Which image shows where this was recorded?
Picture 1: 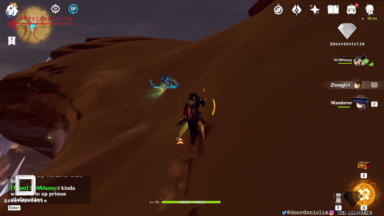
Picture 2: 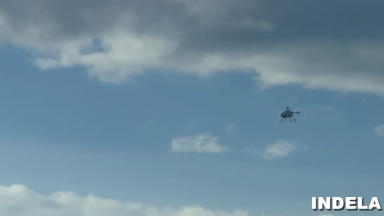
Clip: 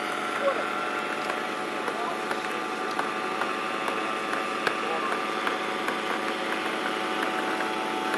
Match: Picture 2